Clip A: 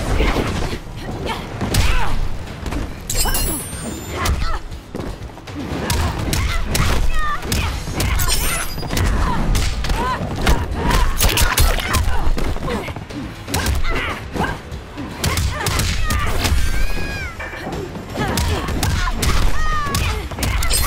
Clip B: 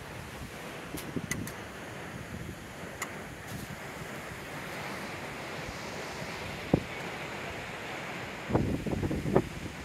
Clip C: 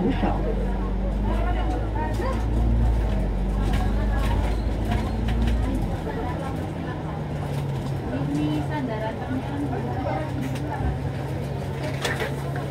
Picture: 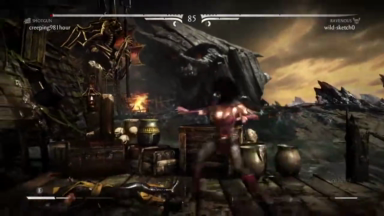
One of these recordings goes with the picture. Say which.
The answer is A